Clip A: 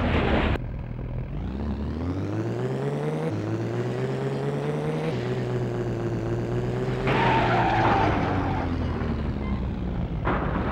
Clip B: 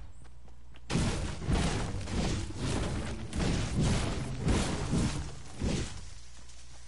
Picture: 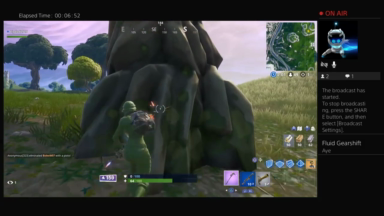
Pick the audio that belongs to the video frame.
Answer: B